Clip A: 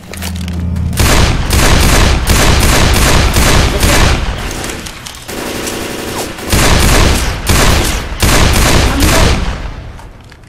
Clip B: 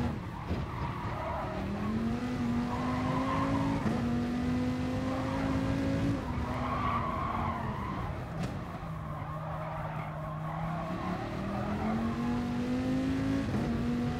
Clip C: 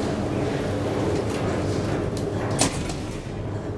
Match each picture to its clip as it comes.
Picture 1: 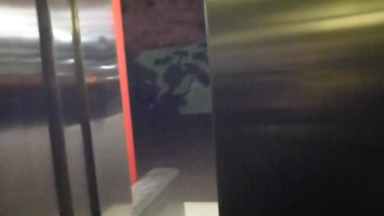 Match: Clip C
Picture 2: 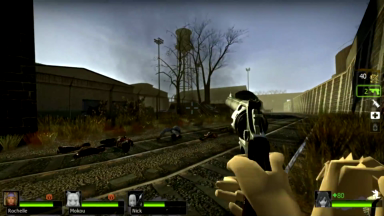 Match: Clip A